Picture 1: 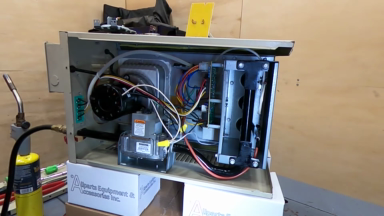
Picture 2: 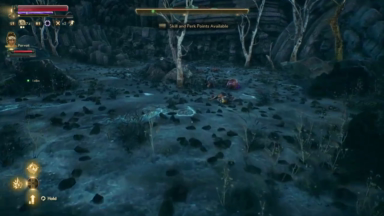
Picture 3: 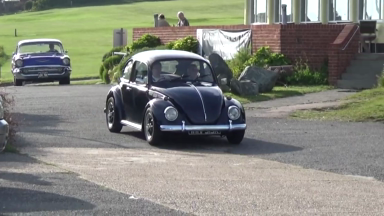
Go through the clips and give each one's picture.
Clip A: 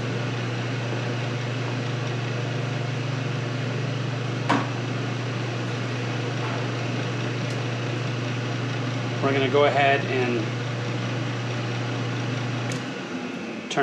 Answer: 1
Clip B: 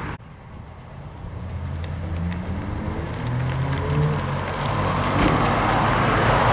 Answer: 3